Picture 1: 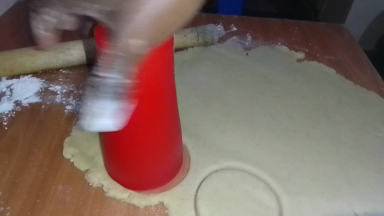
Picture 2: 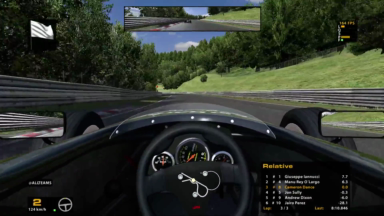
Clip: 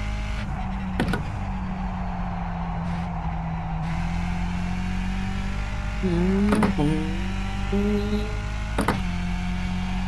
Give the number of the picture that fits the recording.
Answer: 2